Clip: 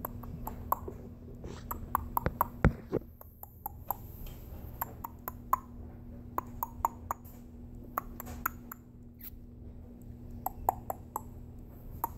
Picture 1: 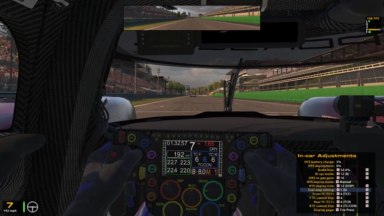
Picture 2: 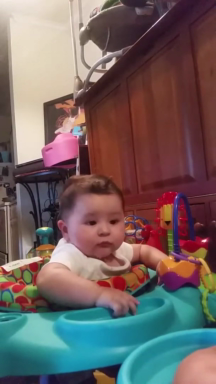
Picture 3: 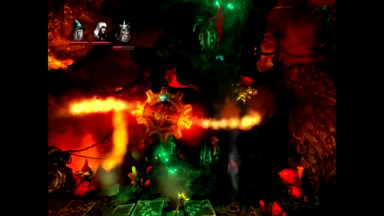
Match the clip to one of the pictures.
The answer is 2